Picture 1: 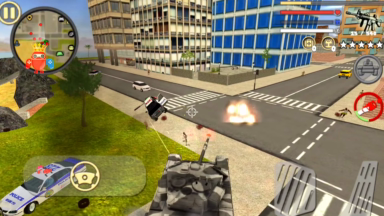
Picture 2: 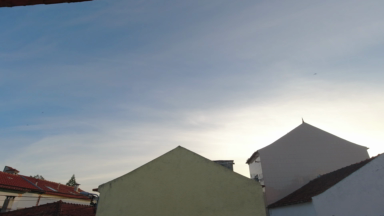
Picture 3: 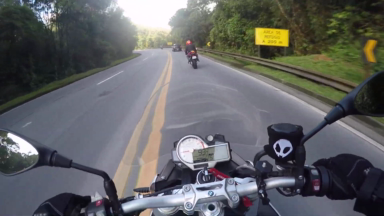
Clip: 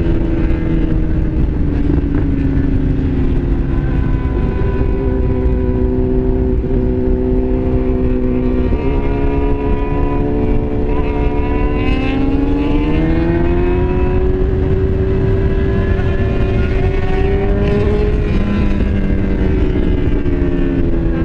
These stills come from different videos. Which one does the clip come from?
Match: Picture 3